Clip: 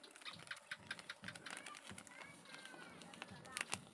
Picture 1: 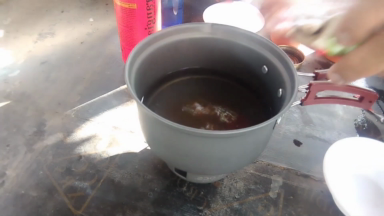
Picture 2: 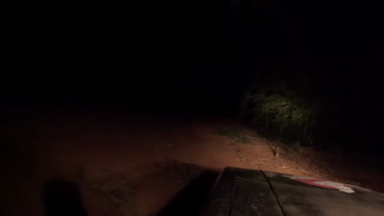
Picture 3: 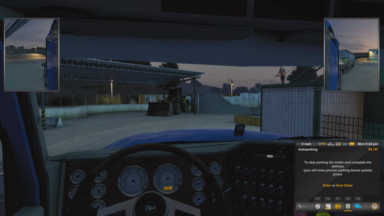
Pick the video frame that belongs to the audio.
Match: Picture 1